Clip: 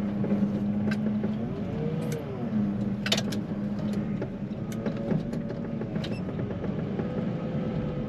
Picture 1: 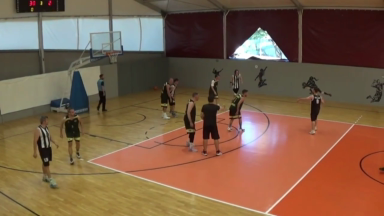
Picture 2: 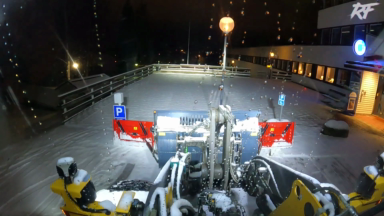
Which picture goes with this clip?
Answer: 2